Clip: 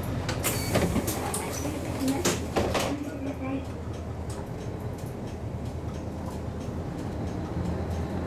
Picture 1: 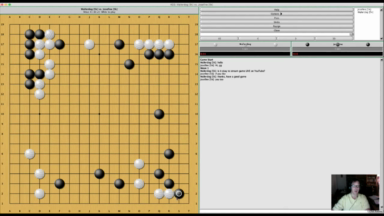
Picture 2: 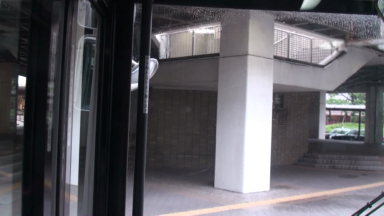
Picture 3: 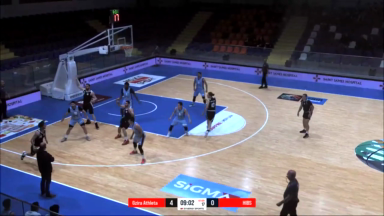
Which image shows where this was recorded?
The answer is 2